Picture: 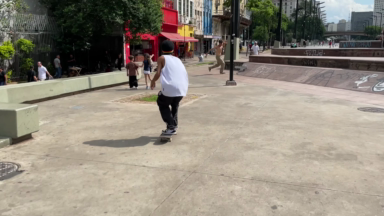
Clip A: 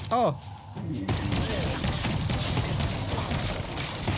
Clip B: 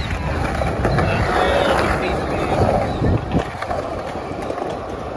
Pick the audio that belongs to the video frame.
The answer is B